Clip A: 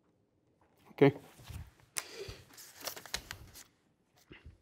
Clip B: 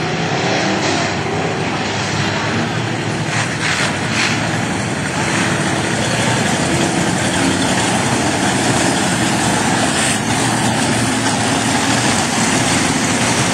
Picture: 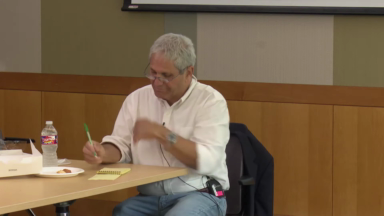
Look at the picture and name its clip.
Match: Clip A